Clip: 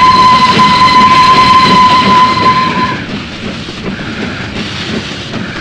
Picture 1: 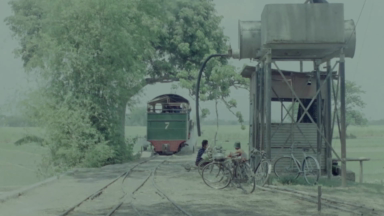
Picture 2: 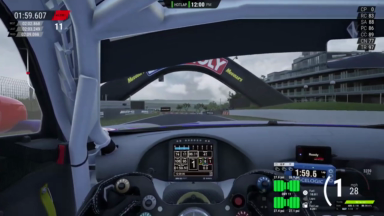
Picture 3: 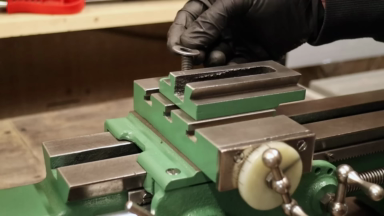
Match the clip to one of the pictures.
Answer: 1